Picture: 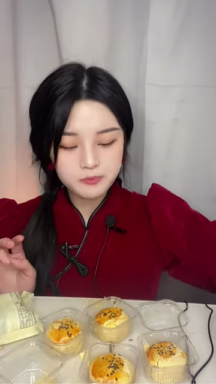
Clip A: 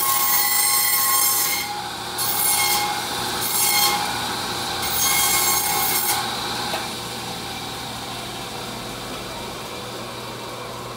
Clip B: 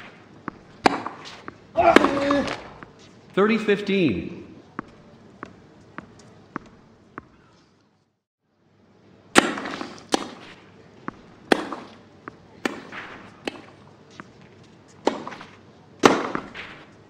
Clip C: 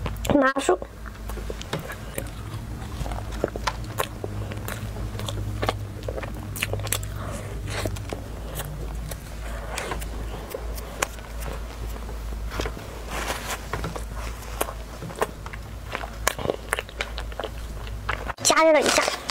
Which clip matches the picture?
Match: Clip C